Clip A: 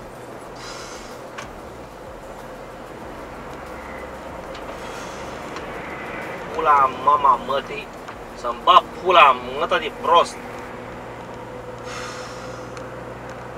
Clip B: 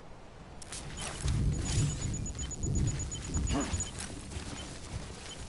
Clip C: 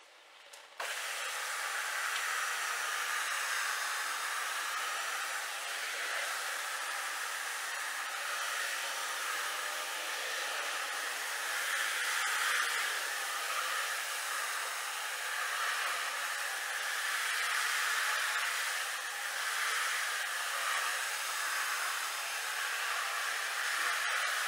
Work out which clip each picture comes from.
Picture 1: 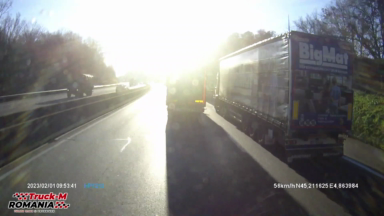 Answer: A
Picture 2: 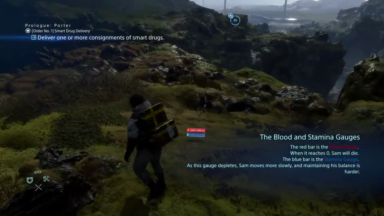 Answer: B